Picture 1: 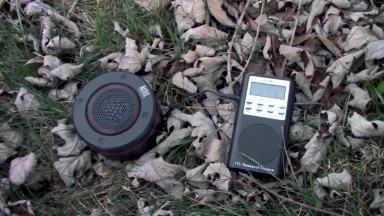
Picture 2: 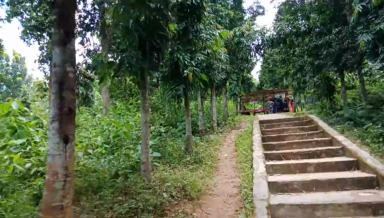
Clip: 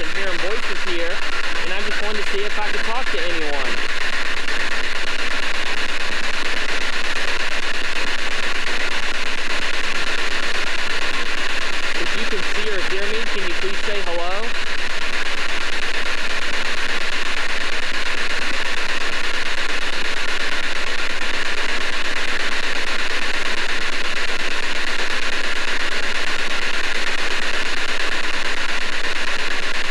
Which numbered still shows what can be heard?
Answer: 1